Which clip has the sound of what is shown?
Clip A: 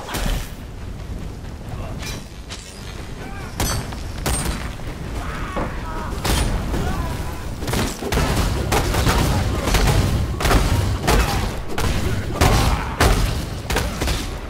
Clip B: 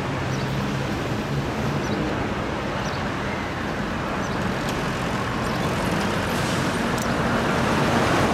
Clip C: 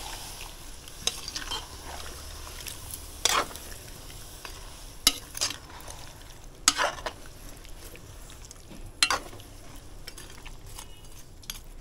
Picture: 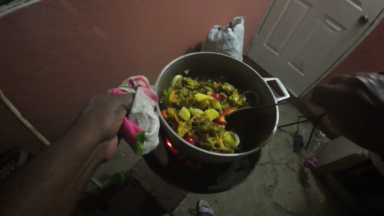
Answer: C